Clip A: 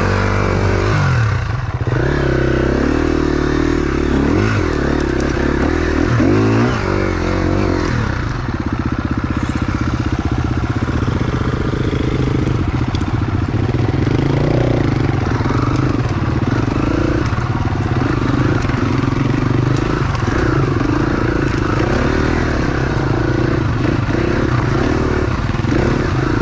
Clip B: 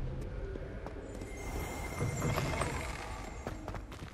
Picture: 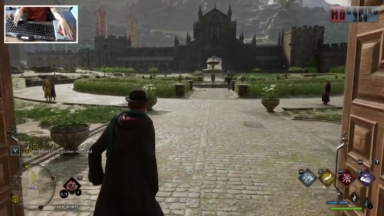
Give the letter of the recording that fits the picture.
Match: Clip B